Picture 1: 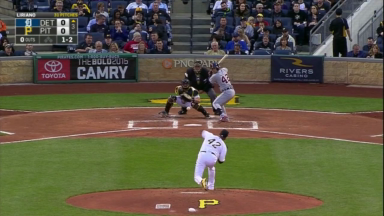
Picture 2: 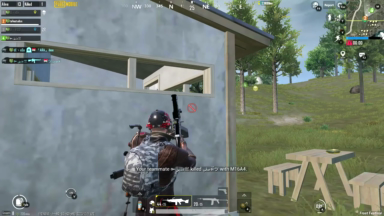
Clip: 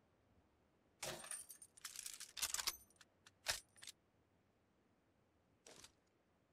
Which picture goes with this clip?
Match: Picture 2